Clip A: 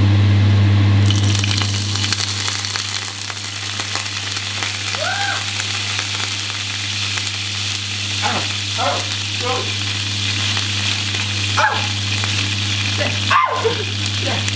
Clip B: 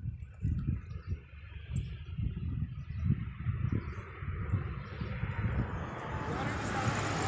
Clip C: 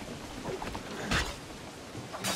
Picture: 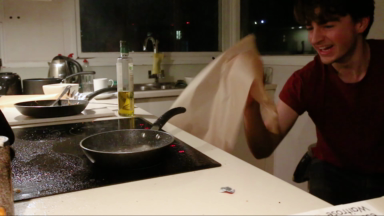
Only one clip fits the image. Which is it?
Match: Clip A